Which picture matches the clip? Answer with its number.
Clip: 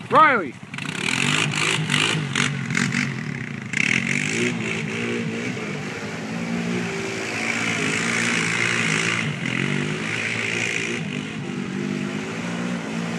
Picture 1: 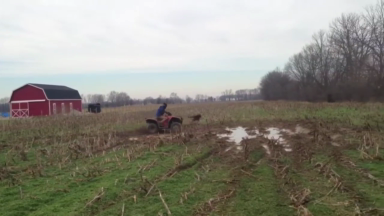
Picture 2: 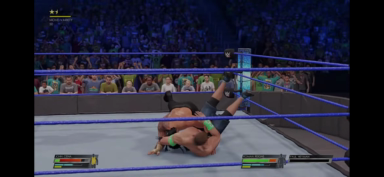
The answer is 1